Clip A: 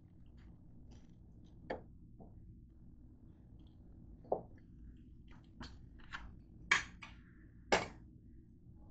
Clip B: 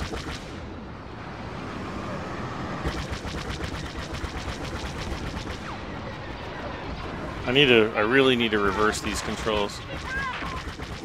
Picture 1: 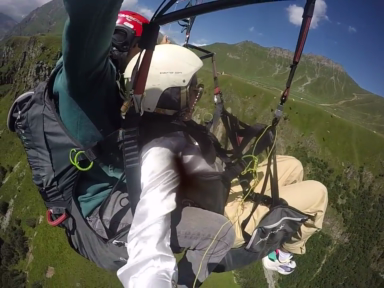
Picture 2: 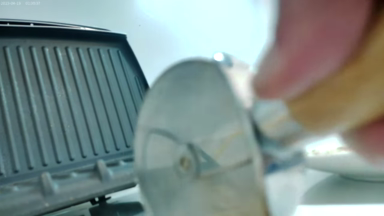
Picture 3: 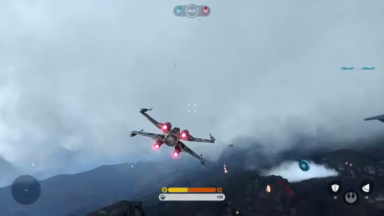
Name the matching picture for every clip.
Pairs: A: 2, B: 3